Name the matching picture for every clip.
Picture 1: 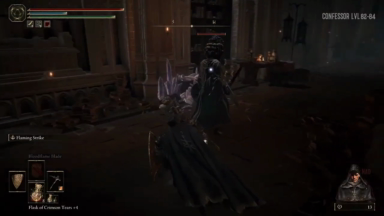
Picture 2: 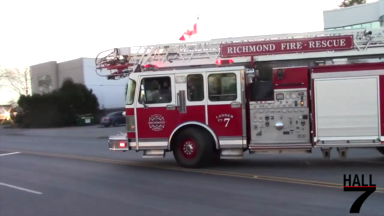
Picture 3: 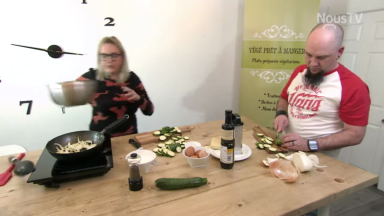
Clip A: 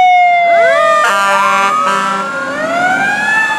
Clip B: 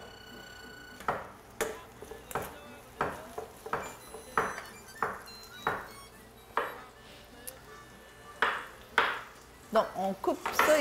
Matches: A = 2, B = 3